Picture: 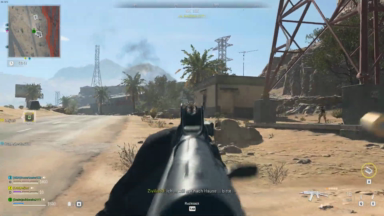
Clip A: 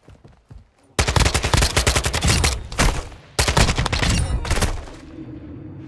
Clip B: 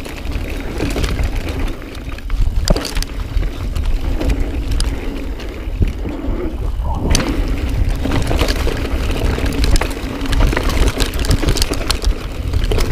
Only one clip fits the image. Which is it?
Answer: A